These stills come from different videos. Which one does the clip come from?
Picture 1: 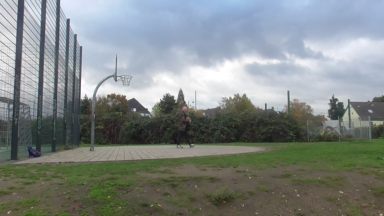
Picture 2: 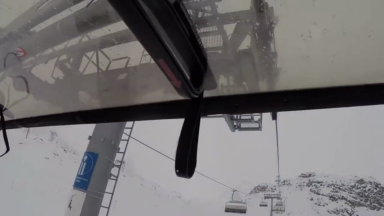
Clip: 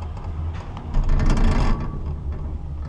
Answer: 2